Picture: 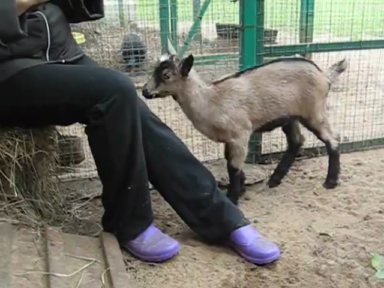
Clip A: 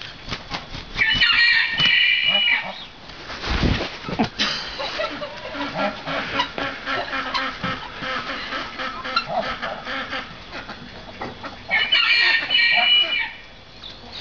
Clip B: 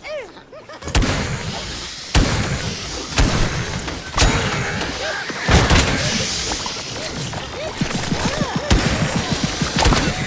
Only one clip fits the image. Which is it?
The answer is A